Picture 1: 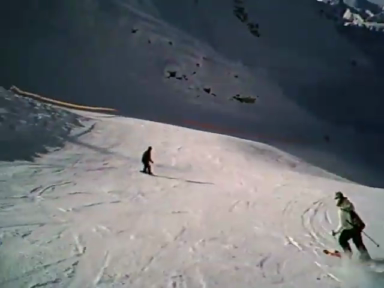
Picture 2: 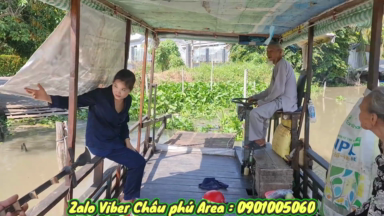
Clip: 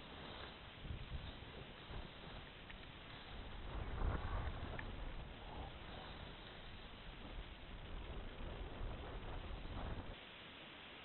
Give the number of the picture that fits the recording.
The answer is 1